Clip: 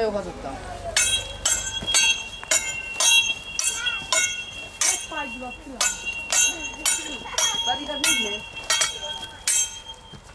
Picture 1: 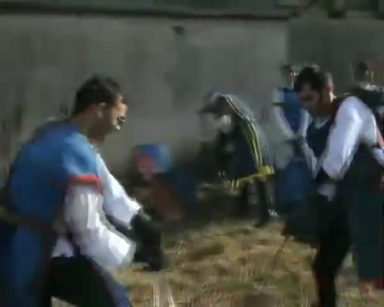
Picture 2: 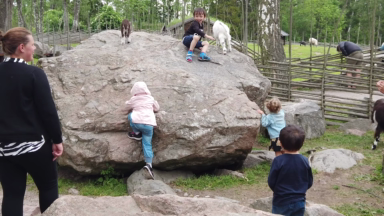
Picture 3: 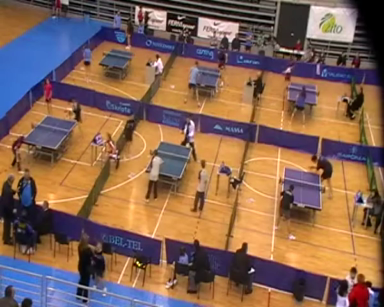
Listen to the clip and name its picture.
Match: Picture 1